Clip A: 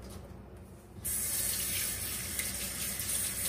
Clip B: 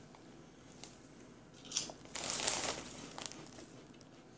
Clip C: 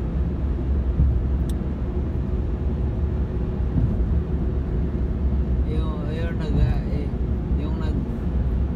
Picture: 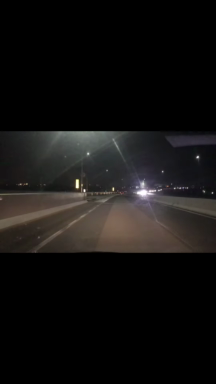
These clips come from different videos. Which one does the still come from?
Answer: C